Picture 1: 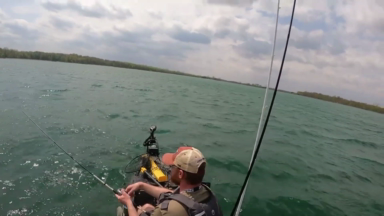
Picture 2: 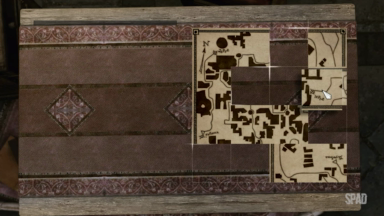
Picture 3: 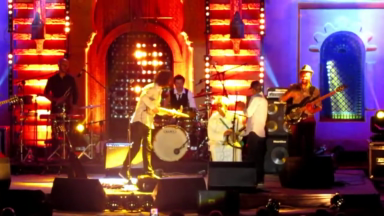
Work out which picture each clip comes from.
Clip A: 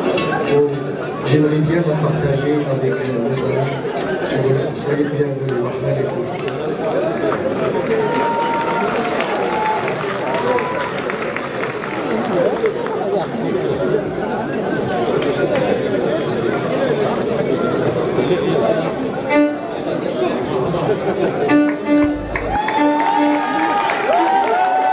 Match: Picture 3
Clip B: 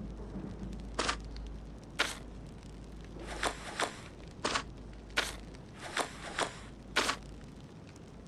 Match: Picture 2